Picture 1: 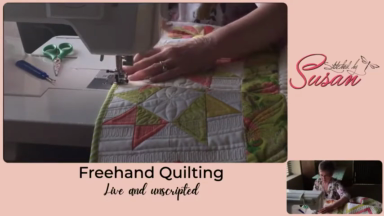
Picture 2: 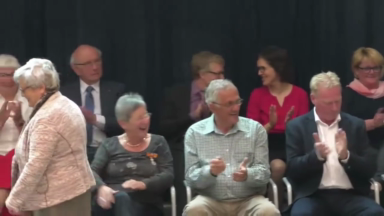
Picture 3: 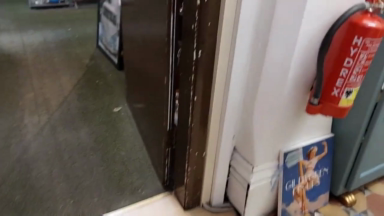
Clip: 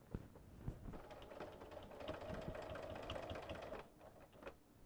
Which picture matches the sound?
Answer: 1